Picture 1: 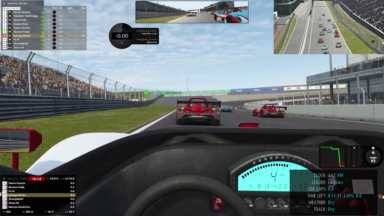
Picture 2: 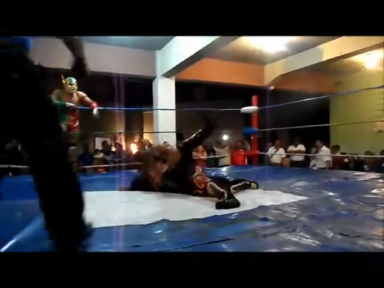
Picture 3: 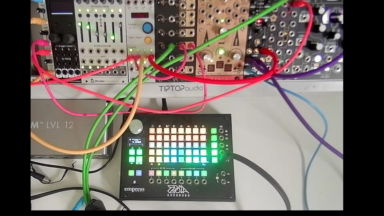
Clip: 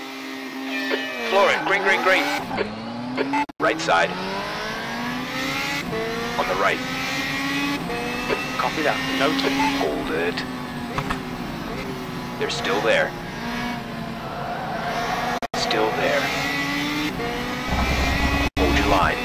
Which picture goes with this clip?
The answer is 1